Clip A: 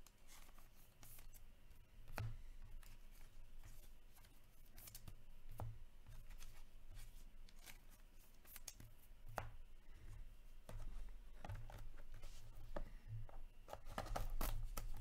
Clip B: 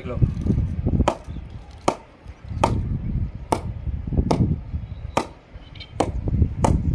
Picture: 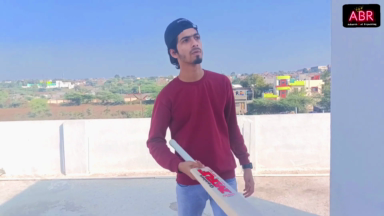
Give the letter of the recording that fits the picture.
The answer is B